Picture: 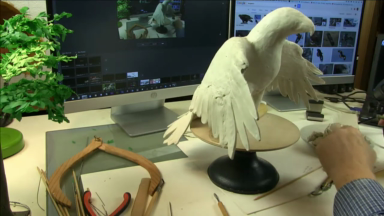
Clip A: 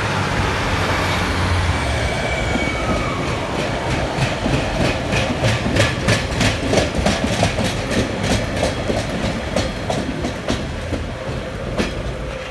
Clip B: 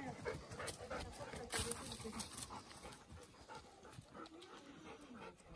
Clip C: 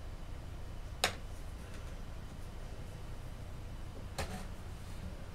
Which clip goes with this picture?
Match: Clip C